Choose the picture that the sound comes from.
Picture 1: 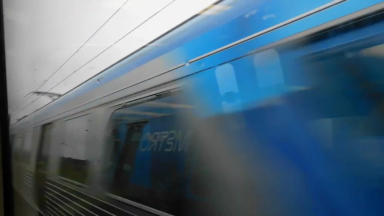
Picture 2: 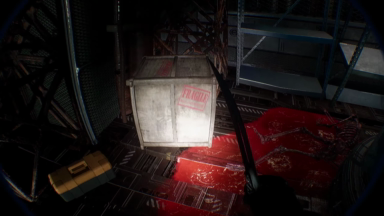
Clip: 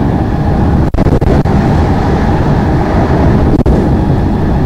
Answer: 1